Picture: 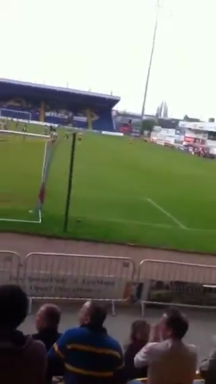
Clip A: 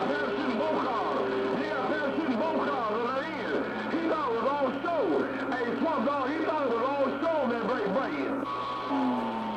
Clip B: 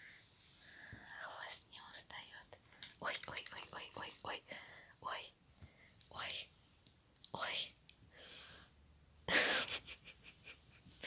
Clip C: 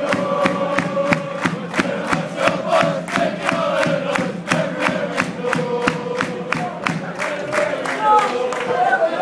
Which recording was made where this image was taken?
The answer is C